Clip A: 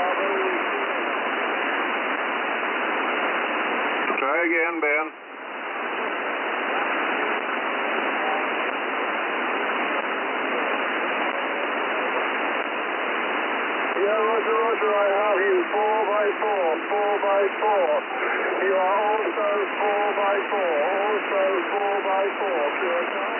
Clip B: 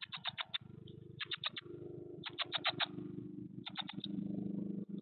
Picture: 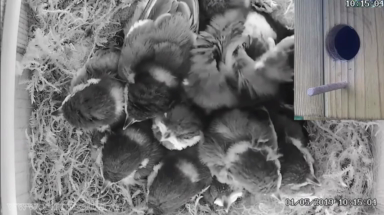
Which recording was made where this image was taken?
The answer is B